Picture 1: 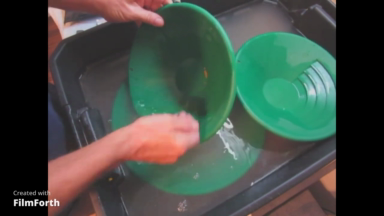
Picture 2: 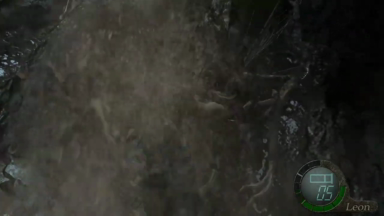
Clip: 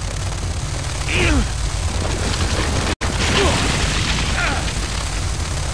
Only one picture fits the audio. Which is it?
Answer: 2